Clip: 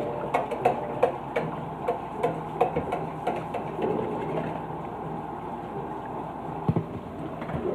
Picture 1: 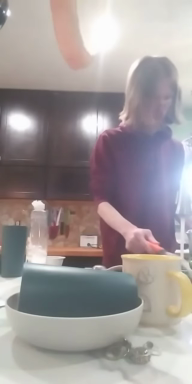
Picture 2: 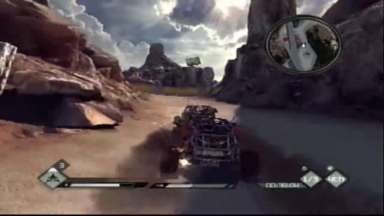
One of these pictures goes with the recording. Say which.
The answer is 1